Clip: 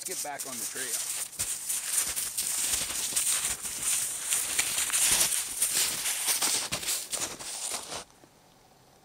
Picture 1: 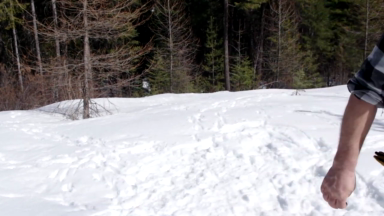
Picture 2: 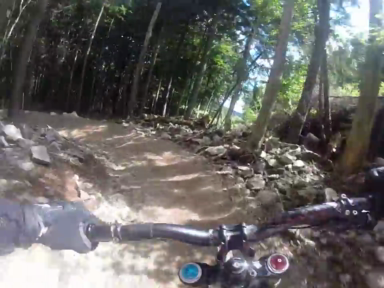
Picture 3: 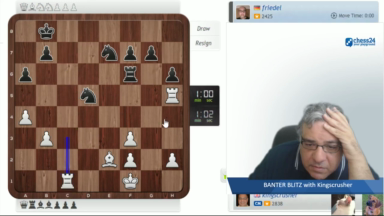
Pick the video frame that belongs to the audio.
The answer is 1